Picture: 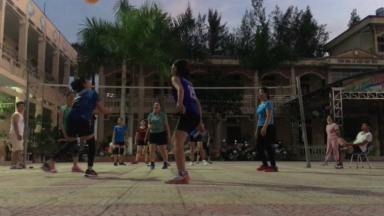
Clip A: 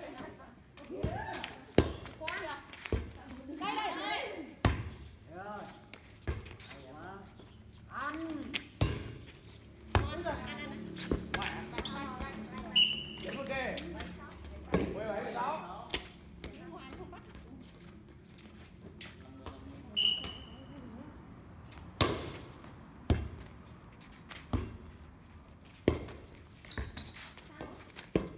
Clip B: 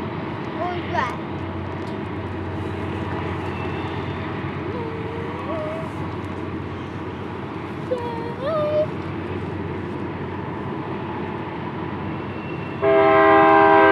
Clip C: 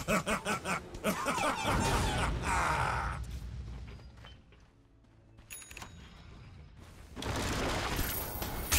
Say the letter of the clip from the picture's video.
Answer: A